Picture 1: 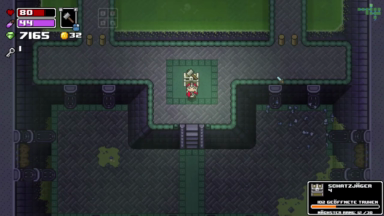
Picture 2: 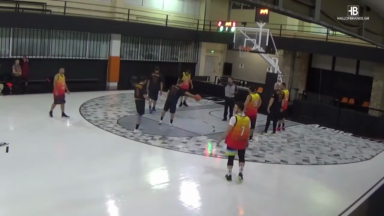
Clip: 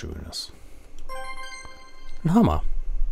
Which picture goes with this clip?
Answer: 1